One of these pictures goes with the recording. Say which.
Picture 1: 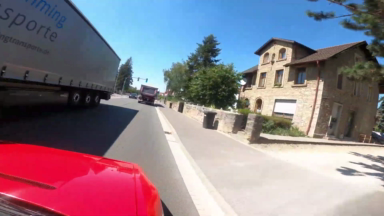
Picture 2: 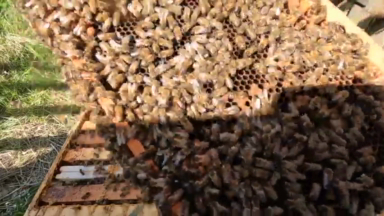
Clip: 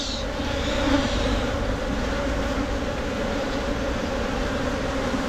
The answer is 2